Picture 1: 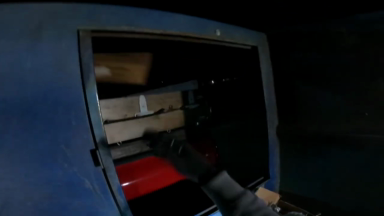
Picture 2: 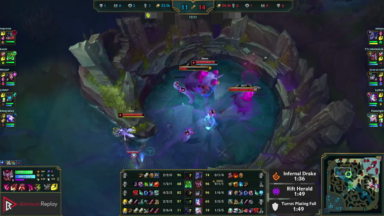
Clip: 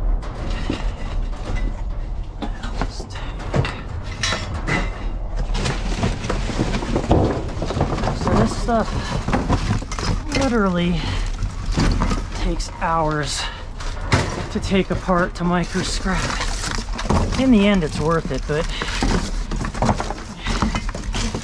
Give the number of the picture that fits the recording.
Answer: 1